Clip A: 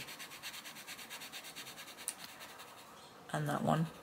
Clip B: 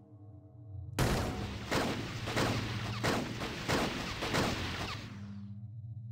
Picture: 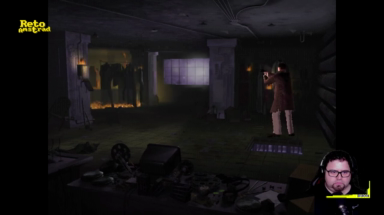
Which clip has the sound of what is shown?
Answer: B